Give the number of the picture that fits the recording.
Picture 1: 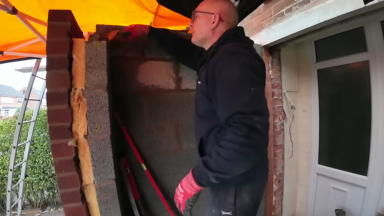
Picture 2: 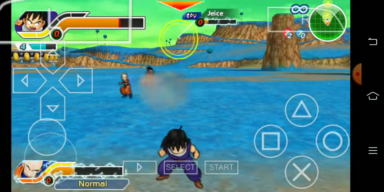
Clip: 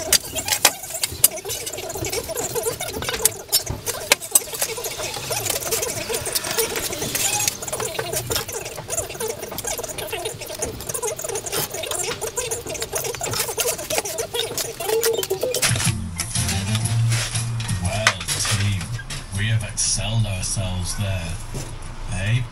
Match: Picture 1